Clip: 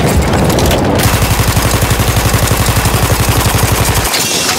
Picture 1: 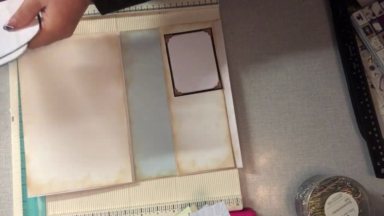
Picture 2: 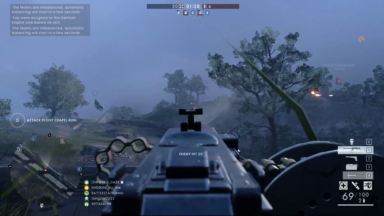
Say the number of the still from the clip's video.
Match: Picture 2